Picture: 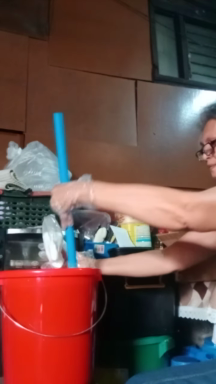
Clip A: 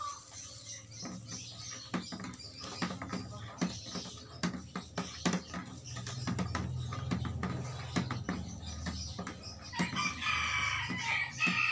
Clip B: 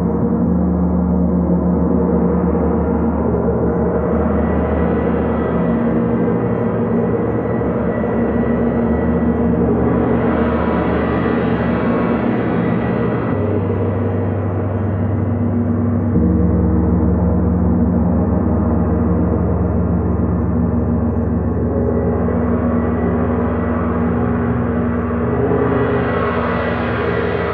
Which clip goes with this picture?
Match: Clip A